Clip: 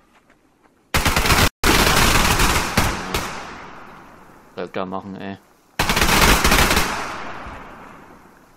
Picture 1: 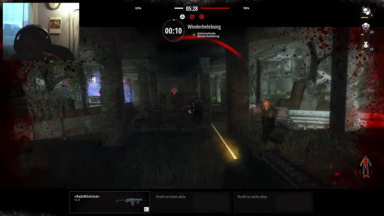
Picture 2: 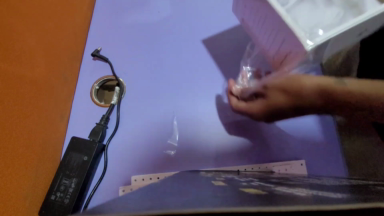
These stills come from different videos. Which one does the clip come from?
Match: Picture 1